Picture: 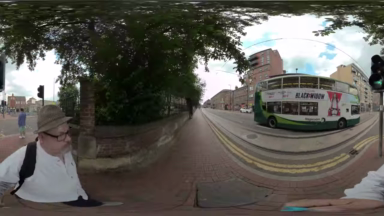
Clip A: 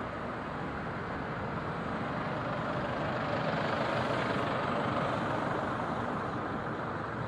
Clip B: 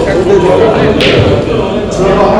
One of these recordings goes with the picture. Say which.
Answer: A